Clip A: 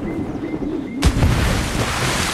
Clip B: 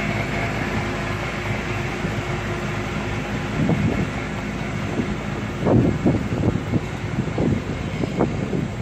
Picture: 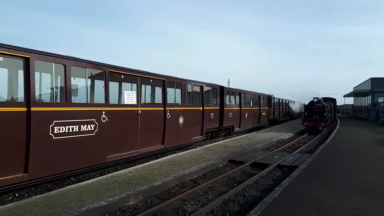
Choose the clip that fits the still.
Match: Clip B